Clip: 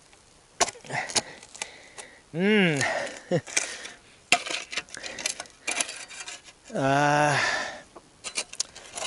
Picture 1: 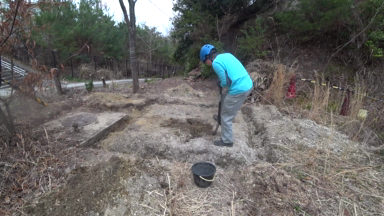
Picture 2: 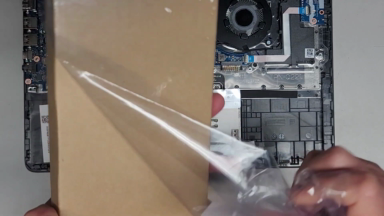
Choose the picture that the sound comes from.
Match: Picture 1